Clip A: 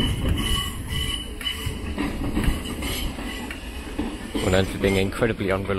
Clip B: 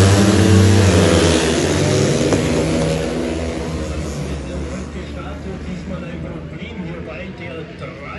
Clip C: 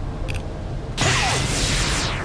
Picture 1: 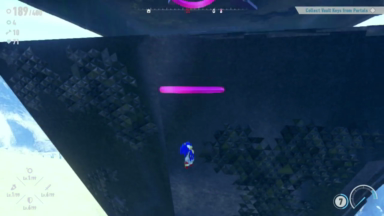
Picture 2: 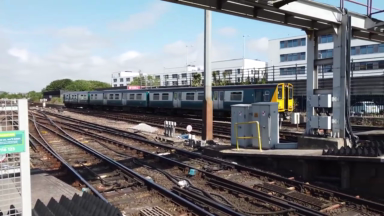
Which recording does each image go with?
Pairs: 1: C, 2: A